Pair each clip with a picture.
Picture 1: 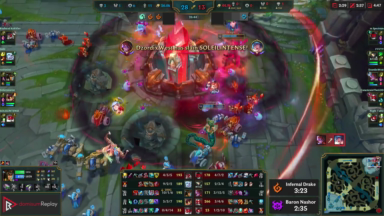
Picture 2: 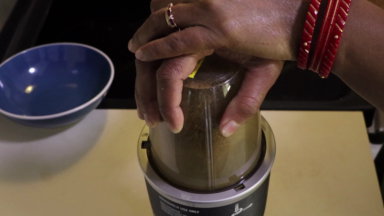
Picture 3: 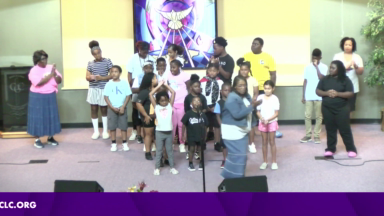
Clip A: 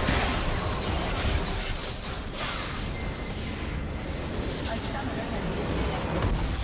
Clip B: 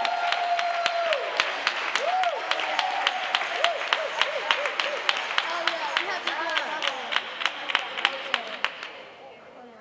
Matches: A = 1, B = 3